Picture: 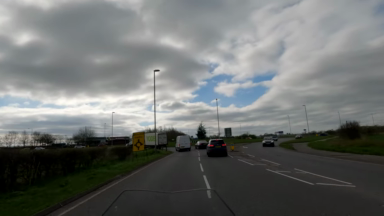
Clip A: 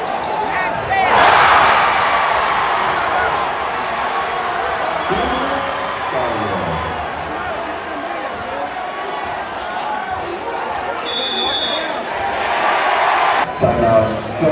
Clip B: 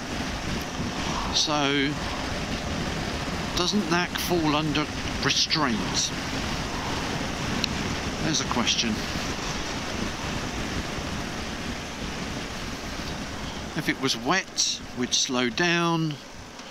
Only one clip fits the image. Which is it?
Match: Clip B